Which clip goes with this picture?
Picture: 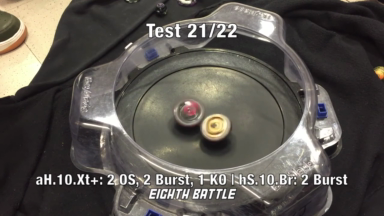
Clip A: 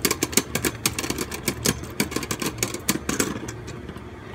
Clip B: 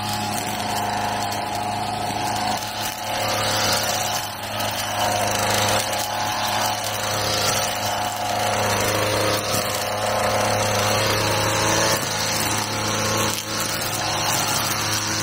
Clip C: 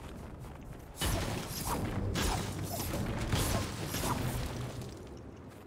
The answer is A